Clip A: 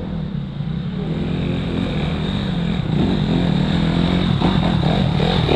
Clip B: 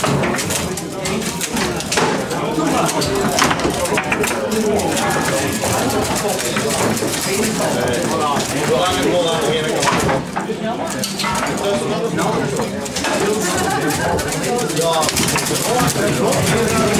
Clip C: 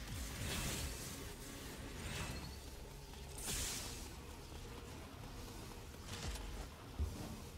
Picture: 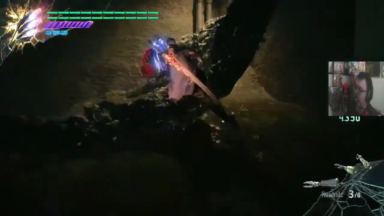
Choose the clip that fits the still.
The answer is C